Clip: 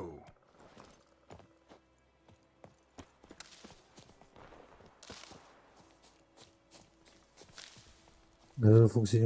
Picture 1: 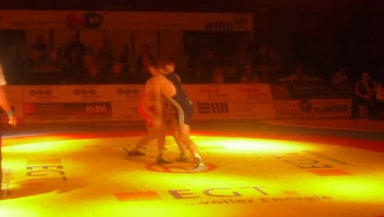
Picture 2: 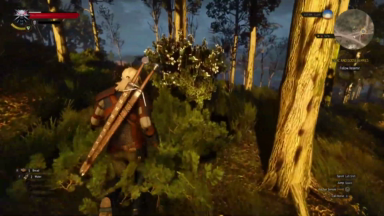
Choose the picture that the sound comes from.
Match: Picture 2